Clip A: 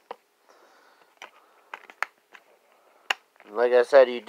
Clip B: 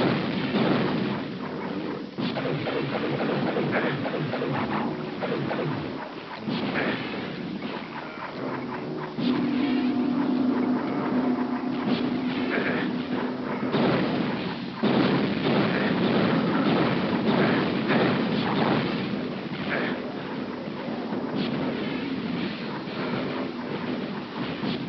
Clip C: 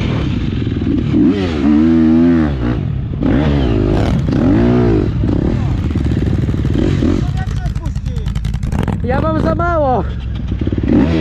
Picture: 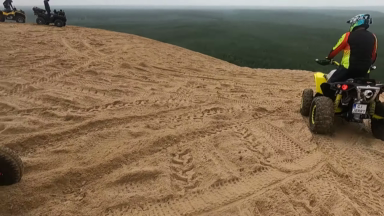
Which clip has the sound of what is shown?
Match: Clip C